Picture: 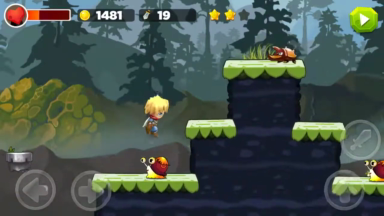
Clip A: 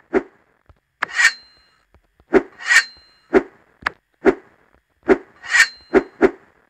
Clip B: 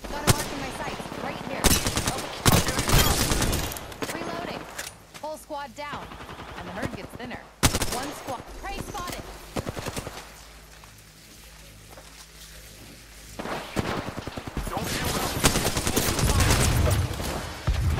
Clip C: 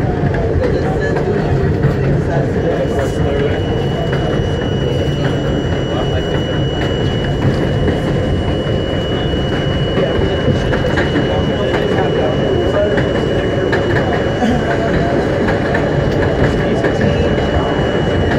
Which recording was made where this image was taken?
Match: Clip A